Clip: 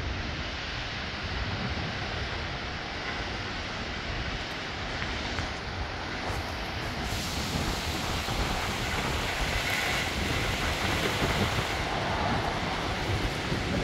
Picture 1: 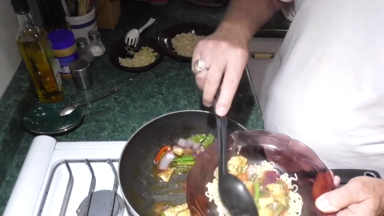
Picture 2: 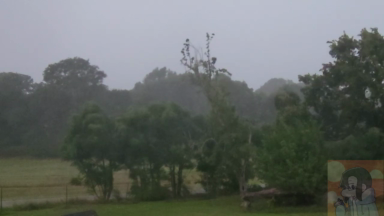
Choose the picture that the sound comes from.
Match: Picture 2